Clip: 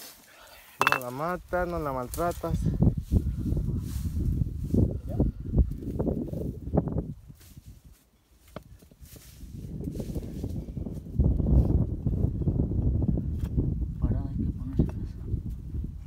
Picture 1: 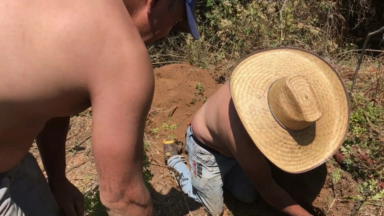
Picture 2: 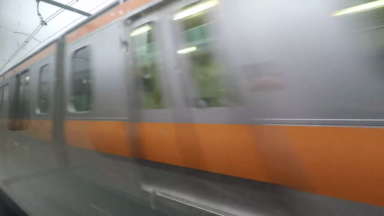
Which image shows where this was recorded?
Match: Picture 1